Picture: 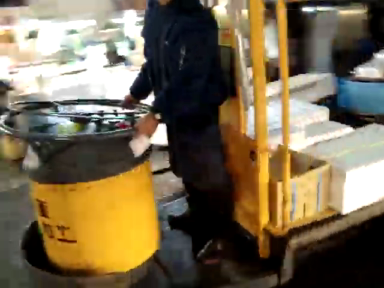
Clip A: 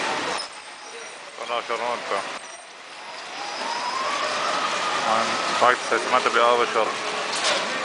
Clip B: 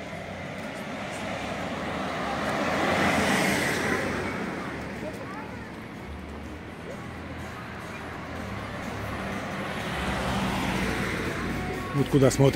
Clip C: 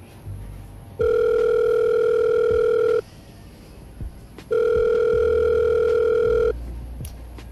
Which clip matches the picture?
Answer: A